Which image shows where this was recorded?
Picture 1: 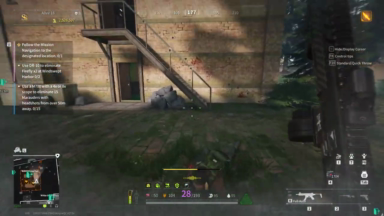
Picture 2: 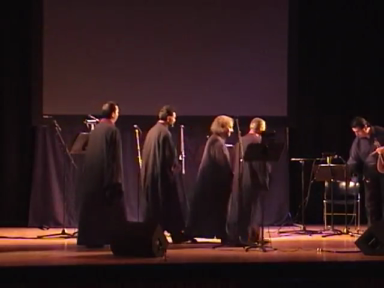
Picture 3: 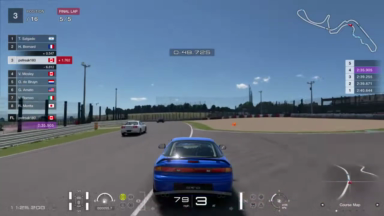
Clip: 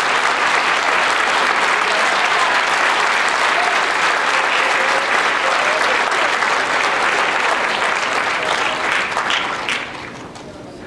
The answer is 2